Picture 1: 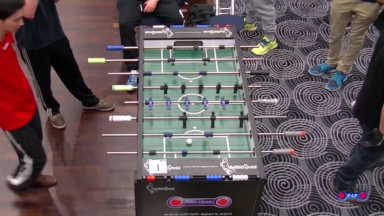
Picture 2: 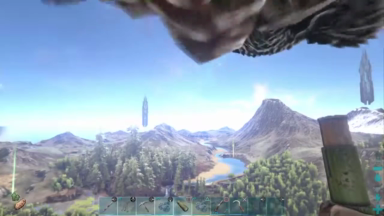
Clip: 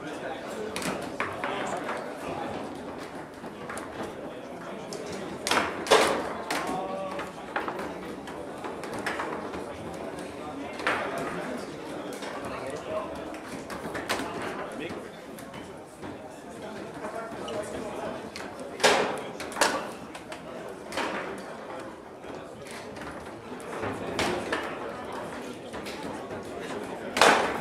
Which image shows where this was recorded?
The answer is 1